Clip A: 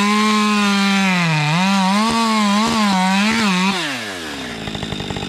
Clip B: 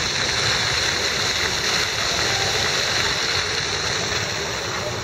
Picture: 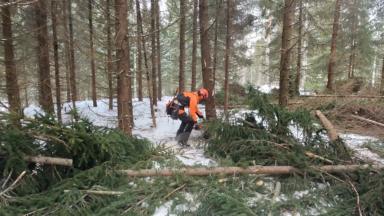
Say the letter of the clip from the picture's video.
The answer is A